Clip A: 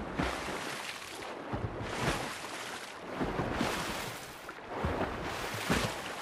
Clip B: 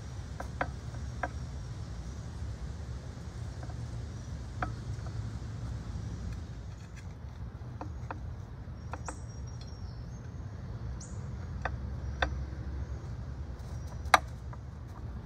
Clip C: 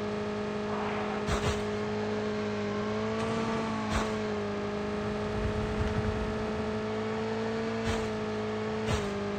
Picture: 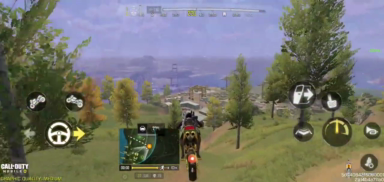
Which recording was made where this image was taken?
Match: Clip C